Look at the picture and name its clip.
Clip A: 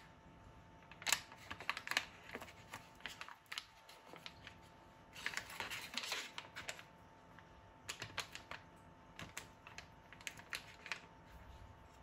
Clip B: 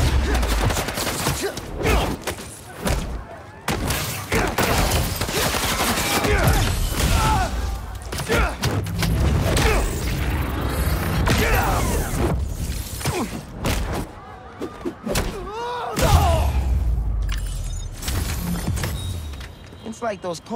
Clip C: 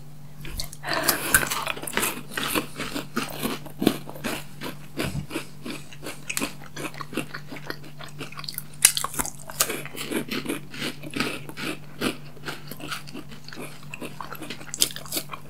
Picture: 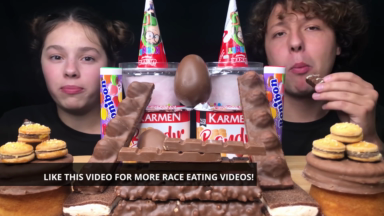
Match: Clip C